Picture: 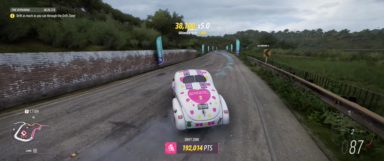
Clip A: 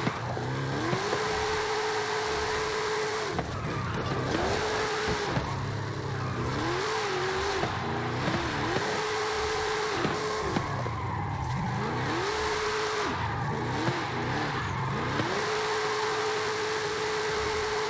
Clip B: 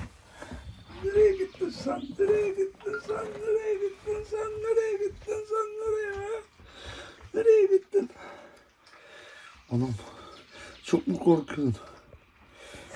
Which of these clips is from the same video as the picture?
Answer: A